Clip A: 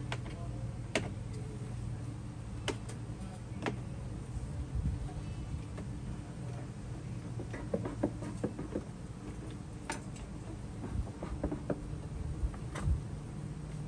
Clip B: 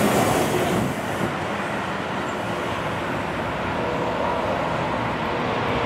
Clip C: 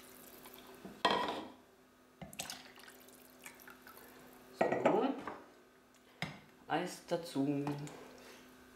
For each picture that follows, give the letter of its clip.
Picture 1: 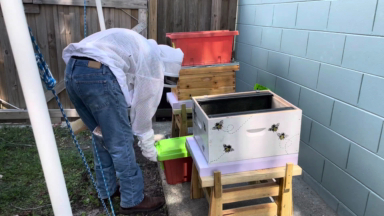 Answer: A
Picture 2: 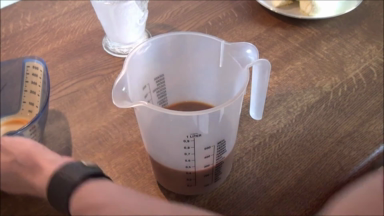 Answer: C